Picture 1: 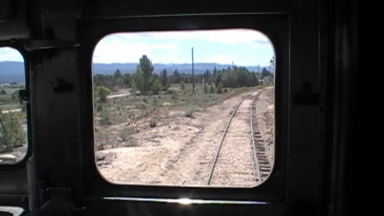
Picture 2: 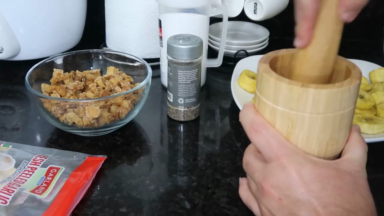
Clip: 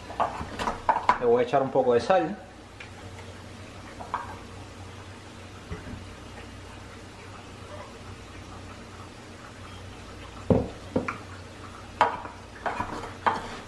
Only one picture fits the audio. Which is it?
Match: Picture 2